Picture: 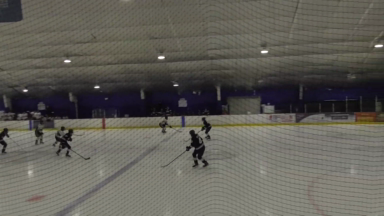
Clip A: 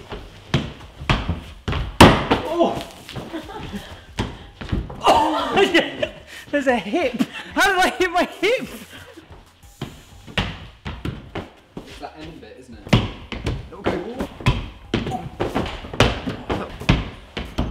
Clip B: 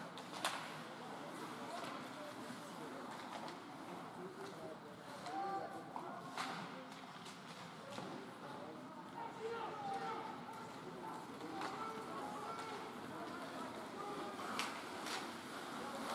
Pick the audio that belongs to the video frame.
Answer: B